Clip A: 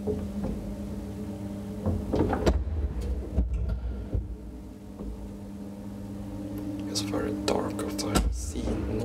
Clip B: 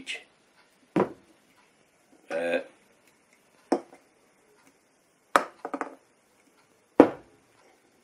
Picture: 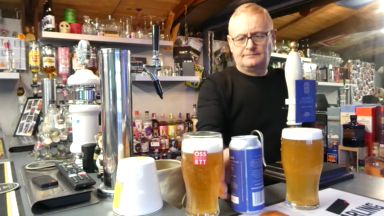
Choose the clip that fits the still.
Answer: B